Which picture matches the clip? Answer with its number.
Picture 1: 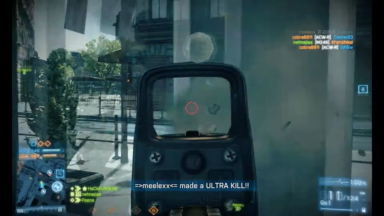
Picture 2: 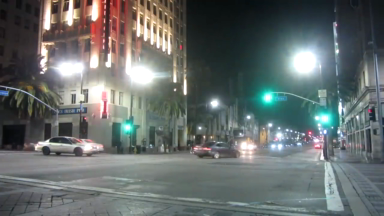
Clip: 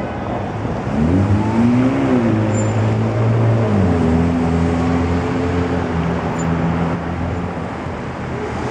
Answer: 2